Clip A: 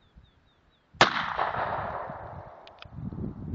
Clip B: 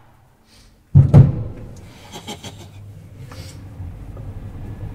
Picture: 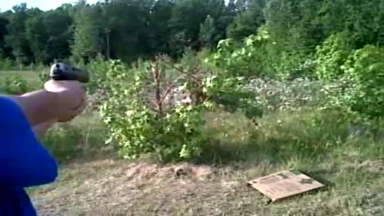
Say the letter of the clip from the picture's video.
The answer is A